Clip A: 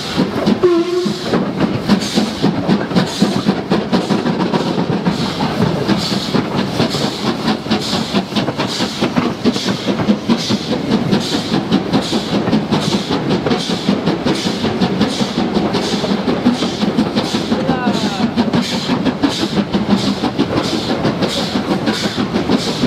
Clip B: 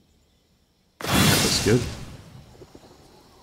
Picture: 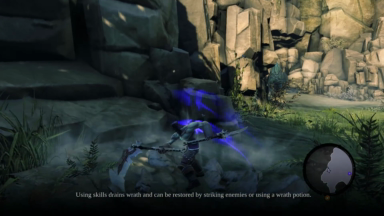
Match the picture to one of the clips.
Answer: B